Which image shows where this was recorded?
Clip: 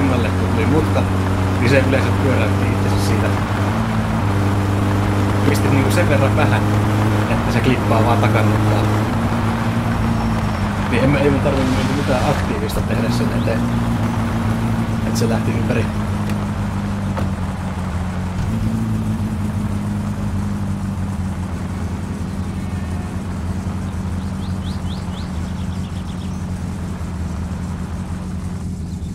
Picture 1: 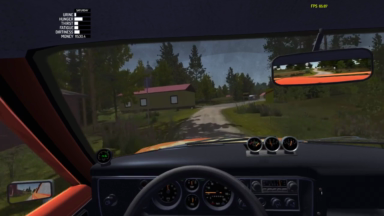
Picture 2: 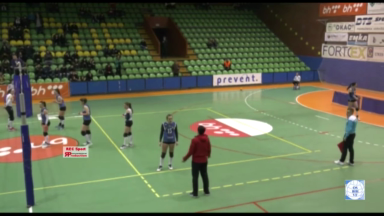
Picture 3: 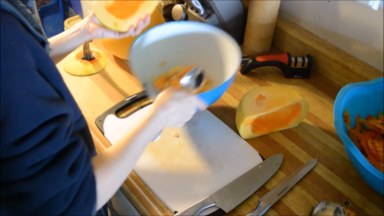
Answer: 1